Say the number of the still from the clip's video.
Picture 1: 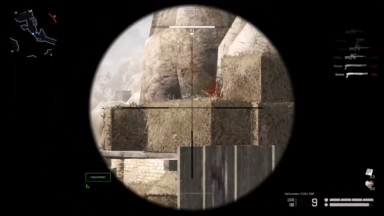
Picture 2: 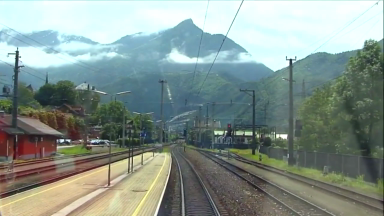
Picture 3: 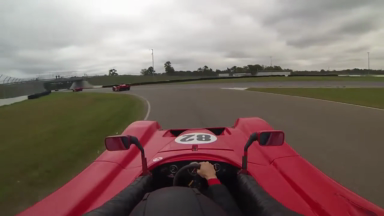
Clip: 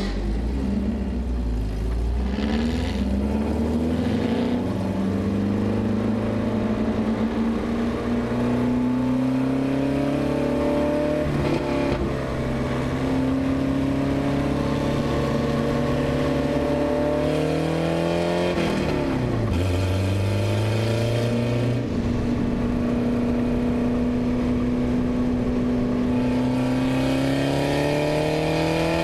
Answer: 3